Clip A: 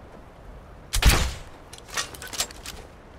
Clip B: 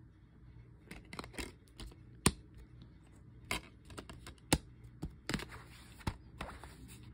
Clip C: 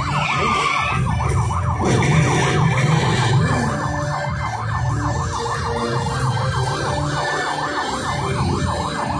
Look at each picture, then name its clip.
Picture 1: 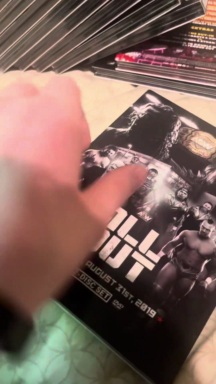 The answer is B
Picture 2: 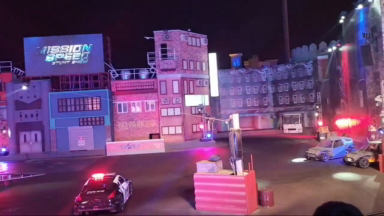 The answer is C